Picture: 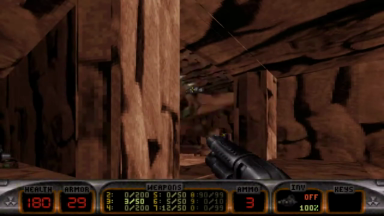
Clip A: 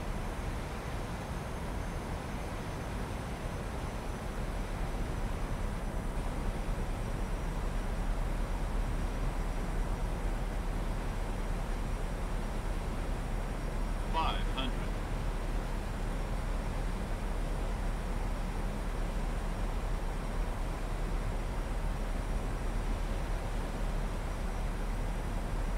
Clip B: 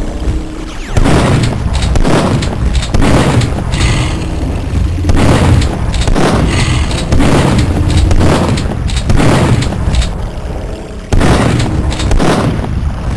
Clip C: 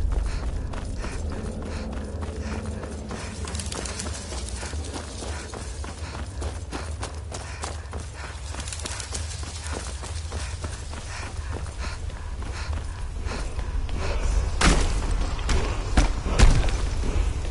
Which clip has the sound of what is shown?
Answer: B